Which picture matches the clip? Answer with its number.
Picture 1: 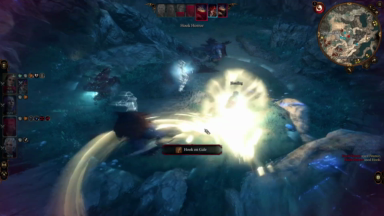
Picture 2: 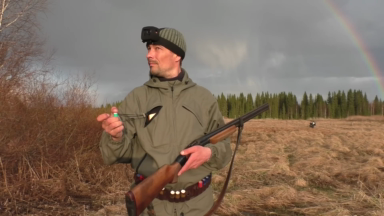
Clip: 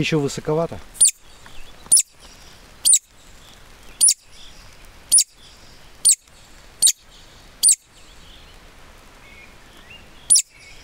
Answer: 2